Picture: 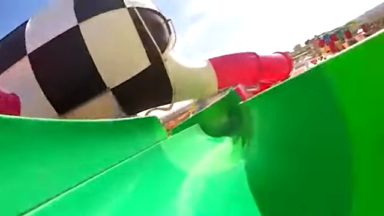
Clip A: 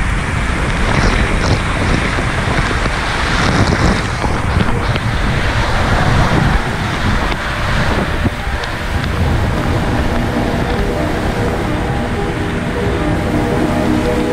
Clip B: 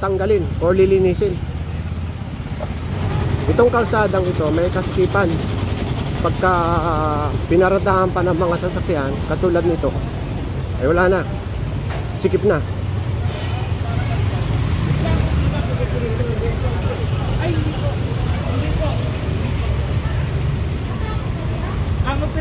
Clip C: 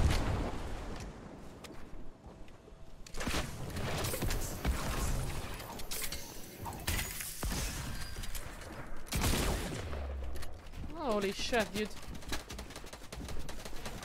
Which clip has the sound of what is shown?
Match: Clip A